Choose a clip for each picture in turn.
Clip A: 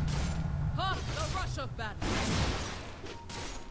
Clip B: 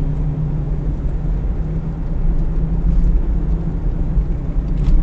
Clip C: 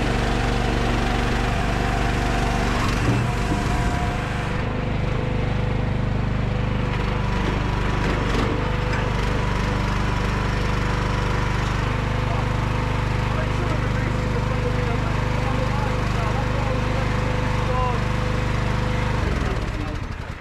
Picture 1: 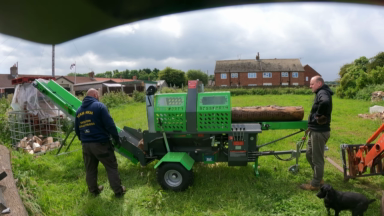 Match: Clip C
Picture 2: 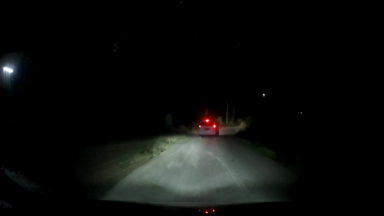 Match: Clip B